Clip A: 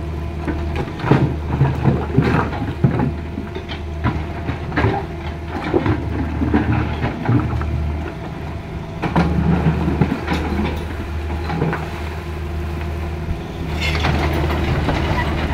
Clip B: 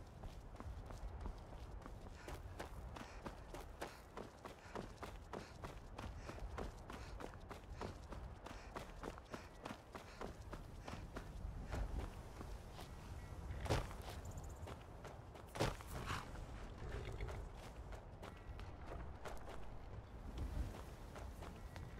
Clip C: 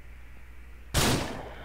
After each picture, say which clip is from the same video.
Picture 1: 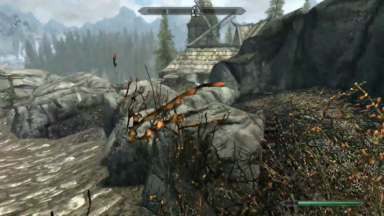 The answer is B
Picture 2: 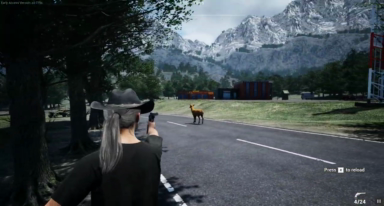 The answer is C